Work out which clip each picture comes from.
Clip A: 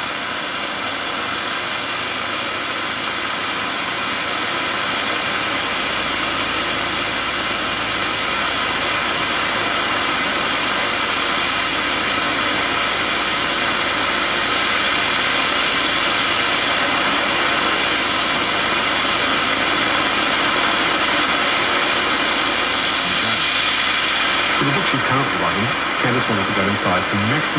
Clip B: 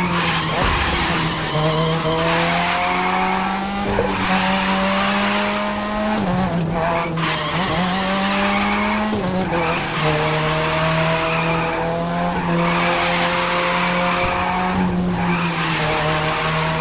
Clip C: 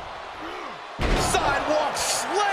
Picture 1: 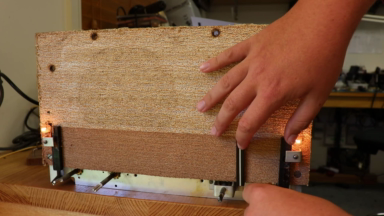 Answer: A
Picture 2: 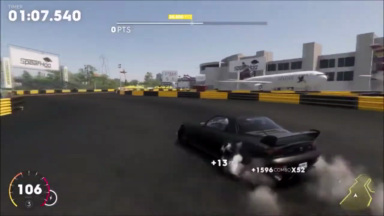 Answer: B